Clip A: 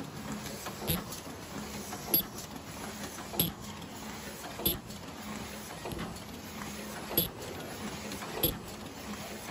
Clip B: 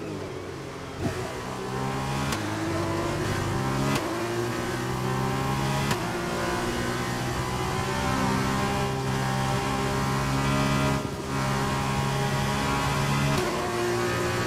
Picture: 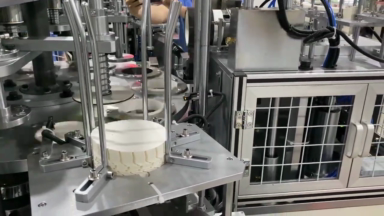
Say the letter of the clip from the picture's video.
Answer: A